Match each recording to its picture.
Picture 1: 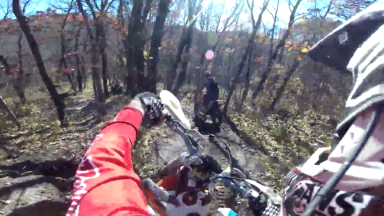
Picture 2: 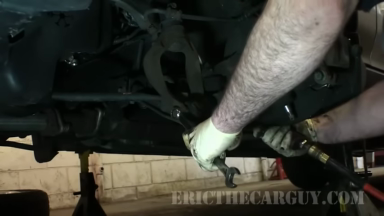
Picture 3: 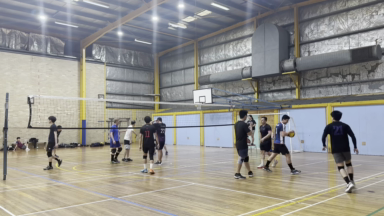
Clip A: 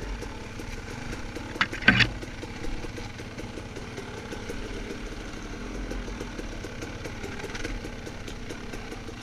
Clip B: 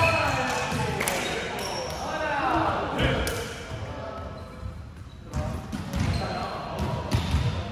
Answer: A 1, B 3